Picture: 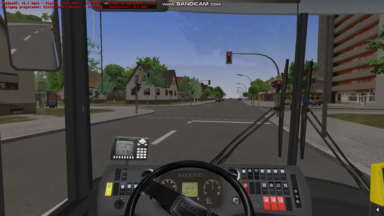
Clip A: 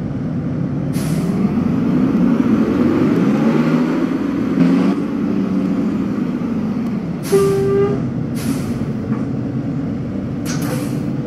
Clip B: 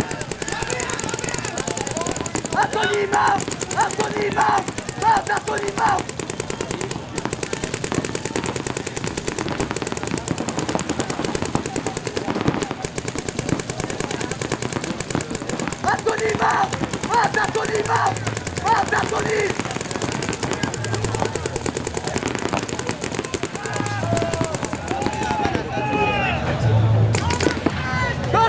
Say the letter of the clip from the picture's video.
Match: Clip A